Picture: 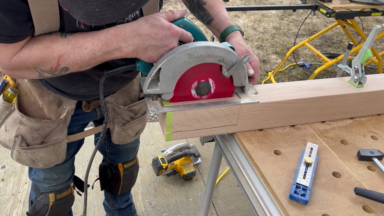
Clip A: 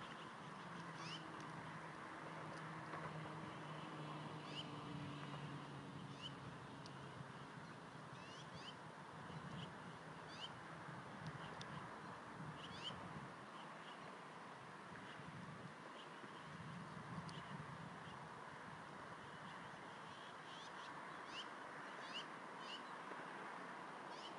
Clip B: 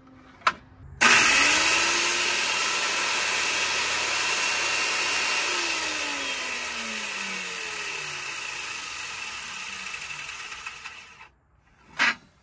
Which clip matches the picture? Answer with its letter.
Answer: B